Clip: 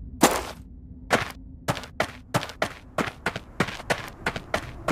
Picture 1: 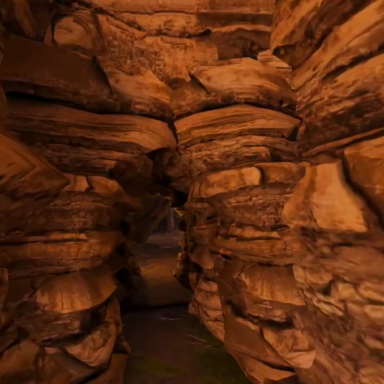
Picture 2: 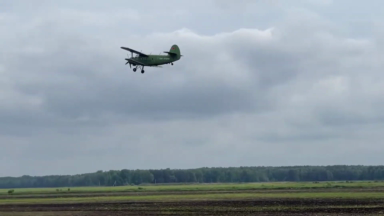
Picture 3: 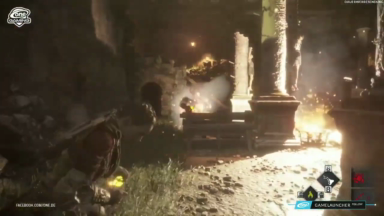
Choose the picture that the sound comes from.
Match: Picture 1